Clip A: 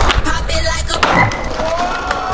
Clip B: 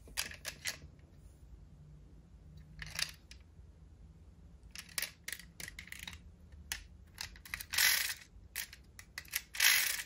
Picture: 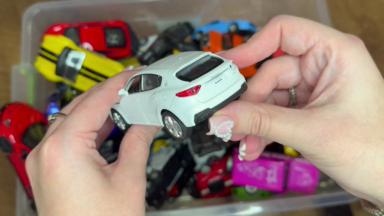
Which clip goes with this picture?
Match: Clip B